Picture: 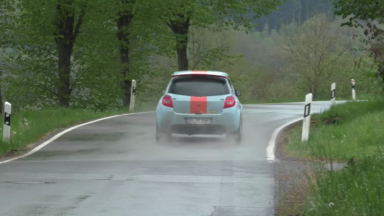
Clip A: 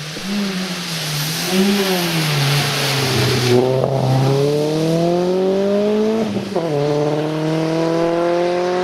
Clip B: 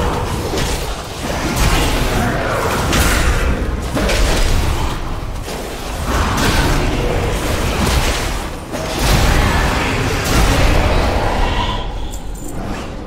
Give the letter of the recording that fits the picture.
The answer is A